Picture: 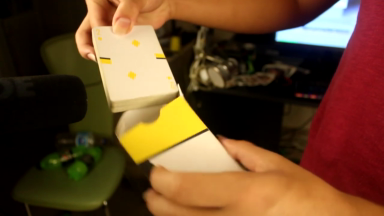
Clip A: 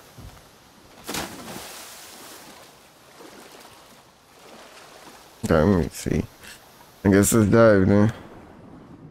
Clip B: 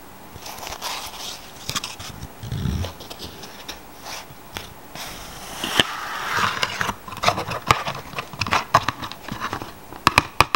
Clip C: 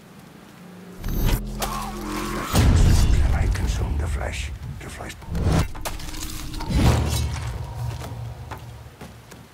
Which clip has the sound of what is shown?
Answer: B